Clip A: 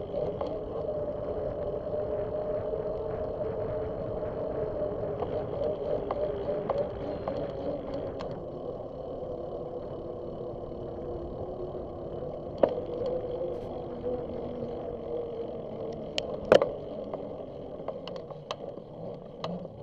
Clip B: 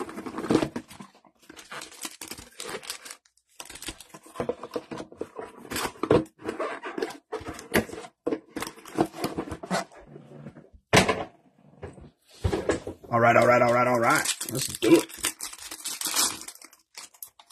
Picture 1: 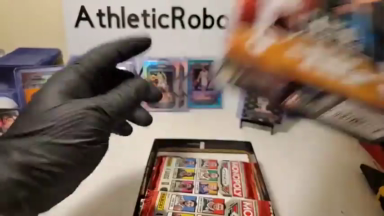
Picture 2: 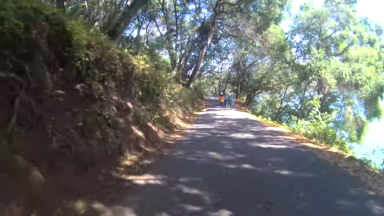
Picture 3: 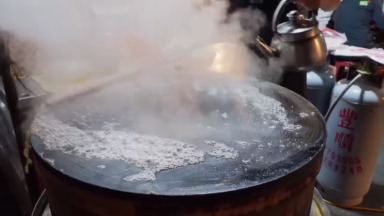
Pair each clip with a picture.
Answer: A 2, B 1